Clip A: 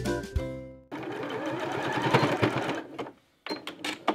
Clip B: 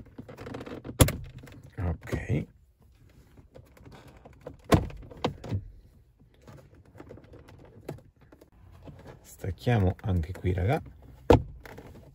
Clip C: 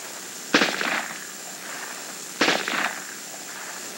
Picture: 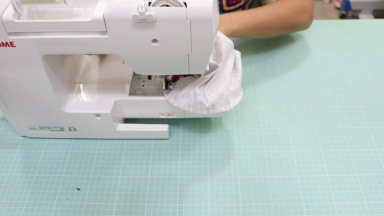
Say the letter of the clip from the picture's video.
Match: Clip A